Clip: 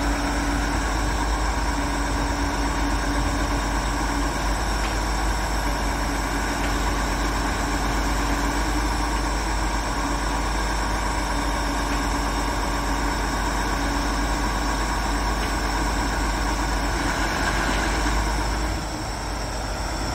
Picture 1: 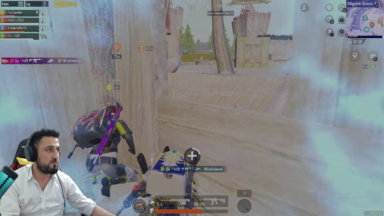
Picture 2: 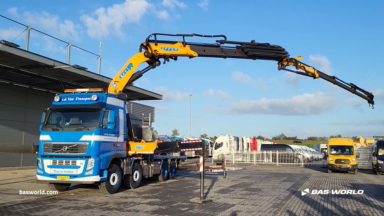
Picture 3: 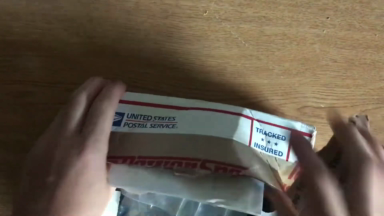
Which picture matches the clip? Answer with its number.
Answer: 2